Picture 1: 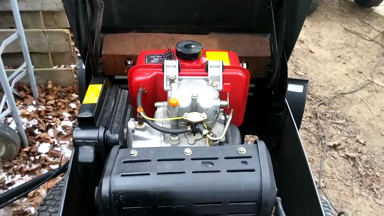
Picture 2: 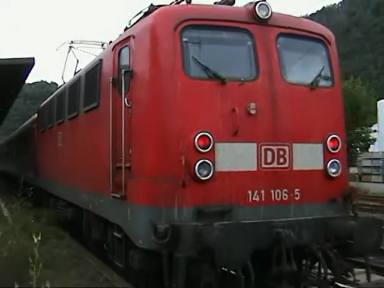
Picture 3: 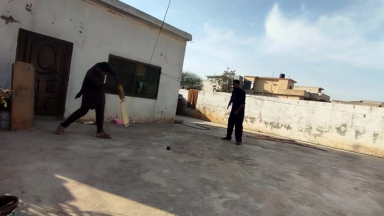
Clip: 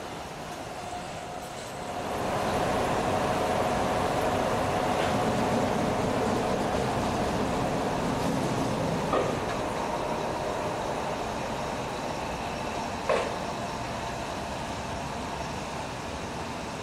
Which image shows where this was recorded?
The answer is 2